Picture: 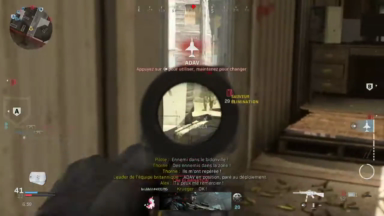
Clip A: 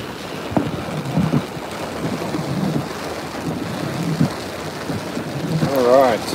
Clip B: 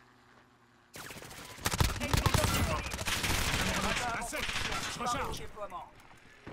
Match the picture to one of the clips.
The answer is B